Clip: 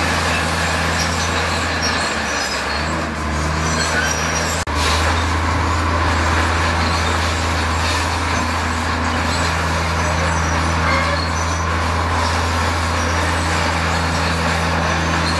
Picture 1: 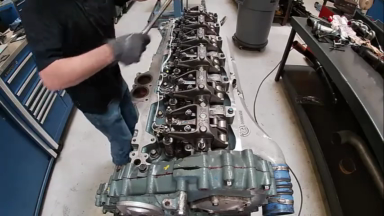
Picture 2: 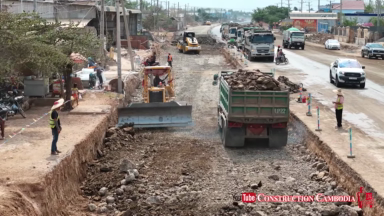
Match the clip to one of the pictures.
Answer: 2